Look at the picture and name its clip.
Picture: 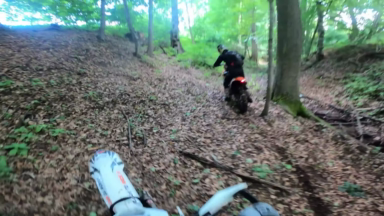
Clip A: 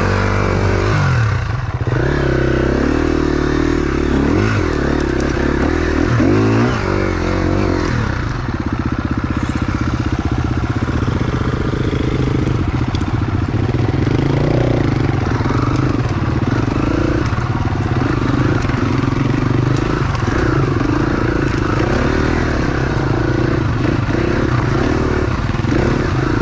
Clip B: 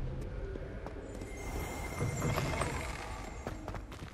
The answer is A